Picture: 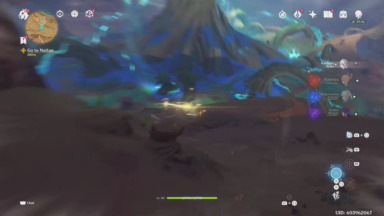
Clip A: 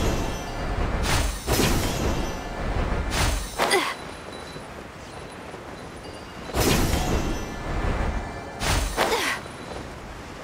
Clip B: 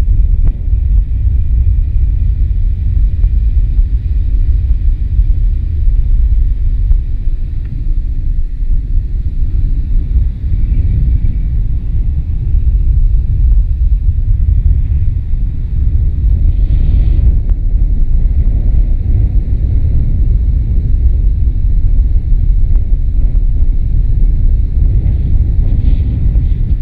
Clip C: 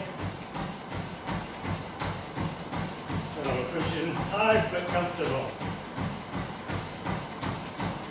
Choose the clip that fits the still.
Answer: A